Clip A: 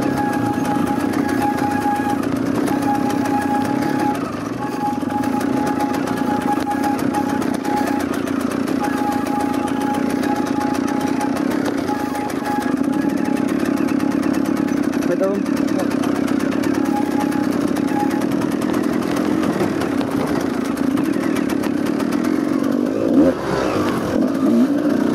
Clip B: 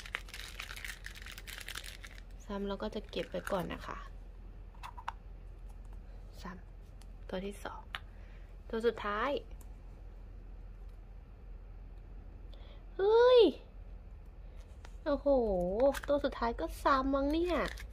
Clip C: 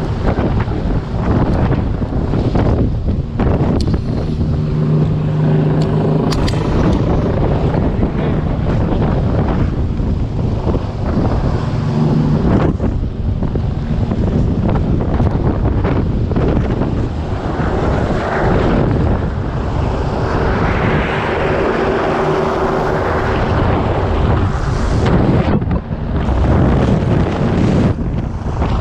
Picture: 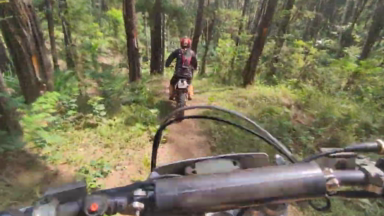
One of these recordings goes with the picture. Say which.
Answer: A